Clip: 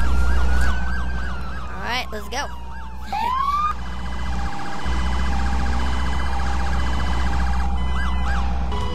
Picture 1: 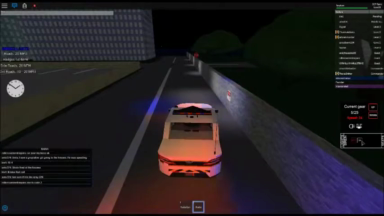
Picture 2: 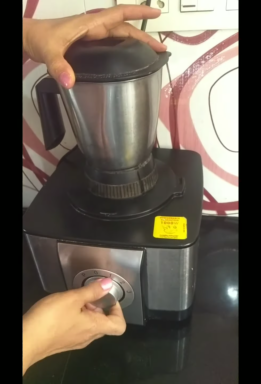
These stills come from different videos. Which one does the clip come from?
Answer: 1